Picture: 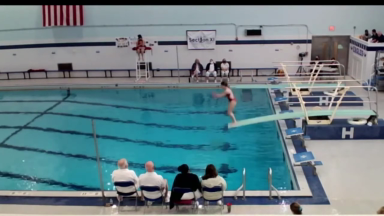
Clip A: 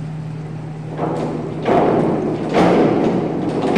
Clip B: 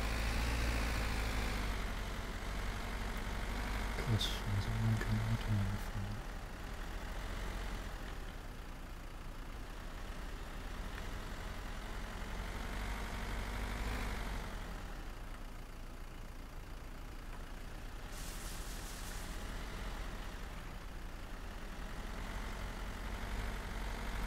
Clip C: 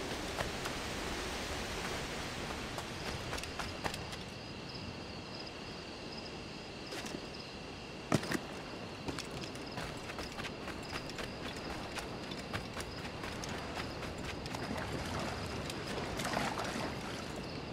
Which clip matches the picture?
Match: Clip A